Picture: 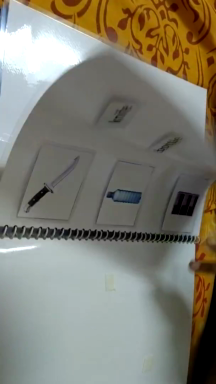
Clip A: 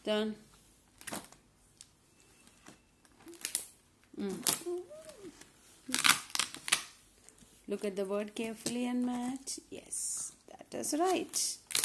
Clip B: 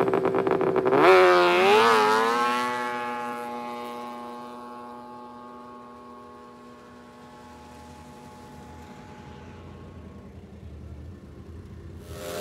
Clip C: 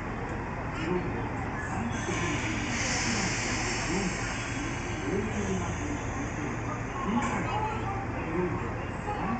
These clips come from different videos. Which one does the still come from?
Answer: A